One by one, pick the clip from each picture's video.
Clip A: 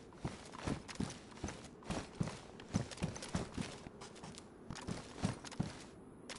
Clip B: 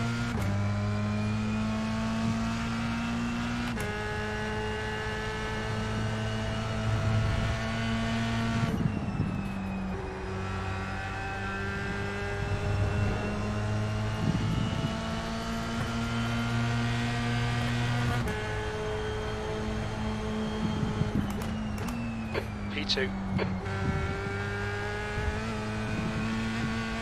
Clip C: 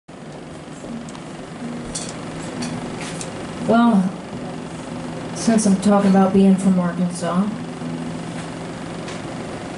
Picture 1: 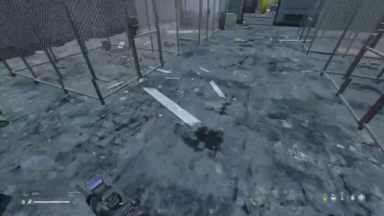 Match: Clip A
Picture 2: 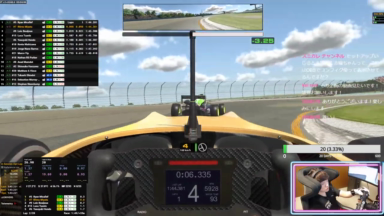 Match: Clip B